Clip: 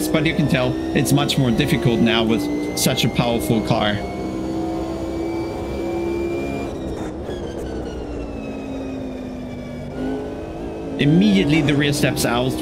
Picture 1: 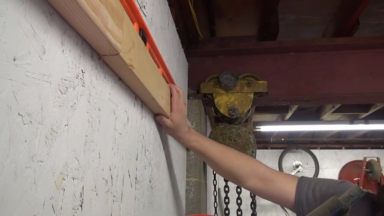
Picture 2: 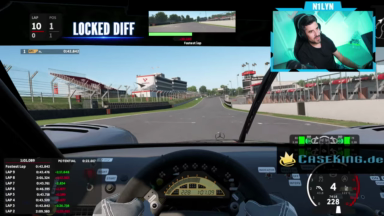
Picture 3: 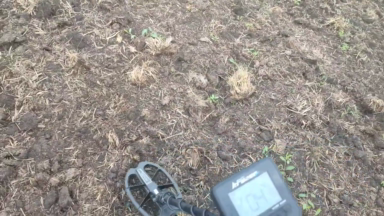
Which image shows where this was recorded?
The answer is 2